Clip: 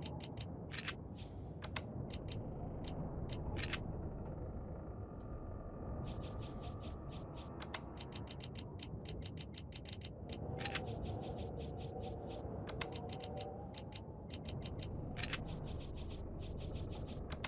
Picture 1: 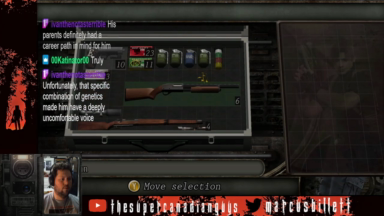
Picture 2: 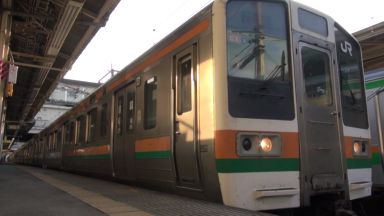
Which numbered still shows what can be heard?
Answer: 1